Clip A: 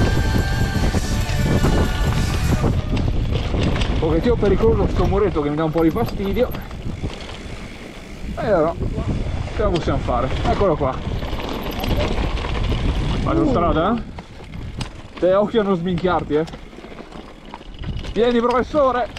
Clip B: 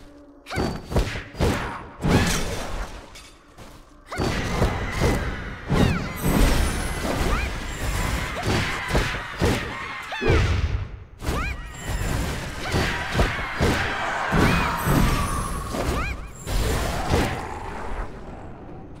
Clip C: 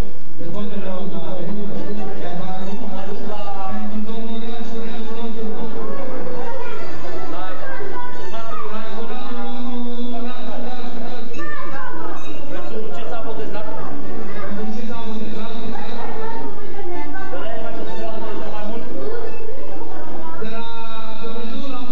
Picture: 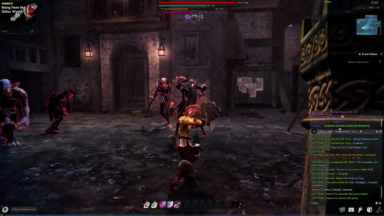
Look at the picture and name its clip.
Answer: B